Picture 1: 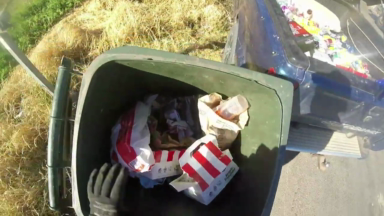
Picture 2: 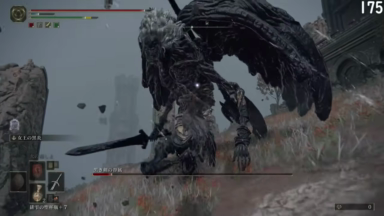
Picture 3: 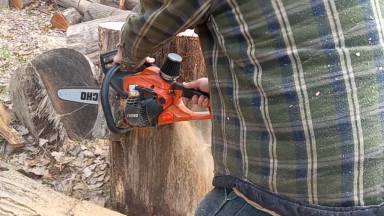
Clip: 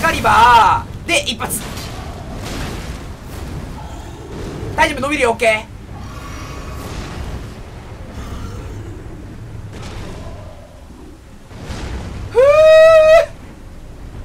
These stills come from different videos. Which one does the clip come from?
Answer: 2